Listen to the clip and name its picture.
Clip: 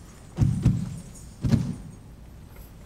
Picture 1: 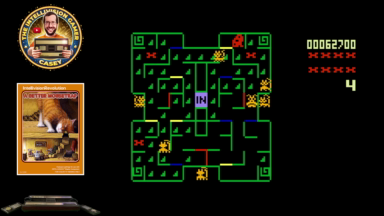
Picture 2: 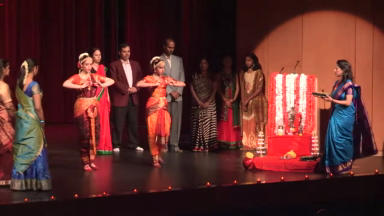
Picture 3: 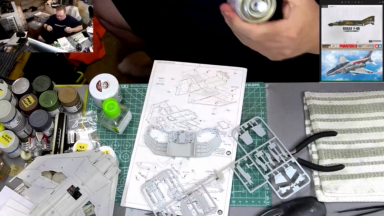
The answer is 2